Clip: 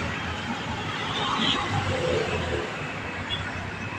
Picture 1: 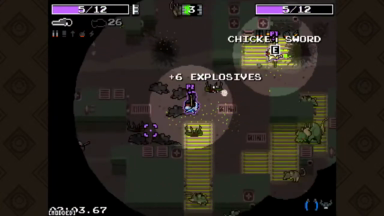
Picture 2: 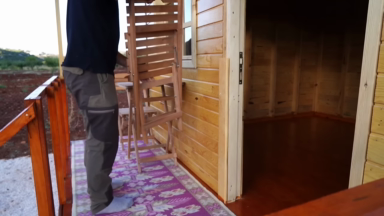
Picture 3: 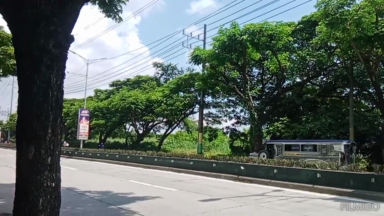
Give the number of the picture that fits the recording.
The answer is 3